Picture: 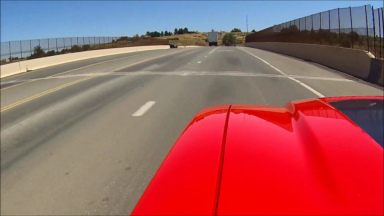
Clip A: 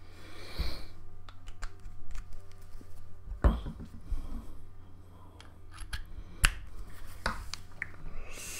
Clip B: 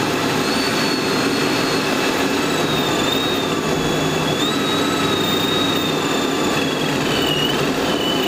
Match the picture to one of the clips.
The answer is B